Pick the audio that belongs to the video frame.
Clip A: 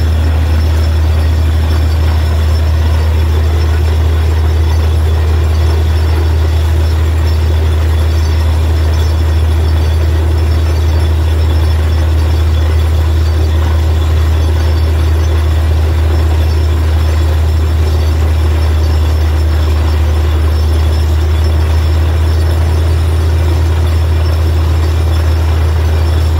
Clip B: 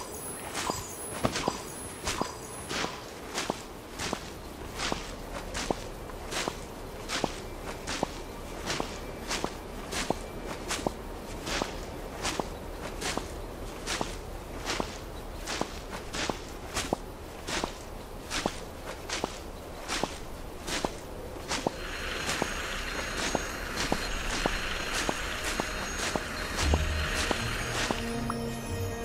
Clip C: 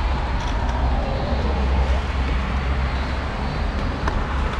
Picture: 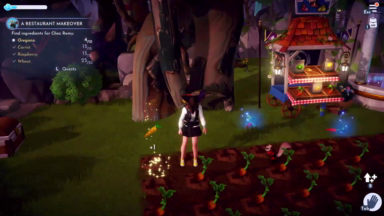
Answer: B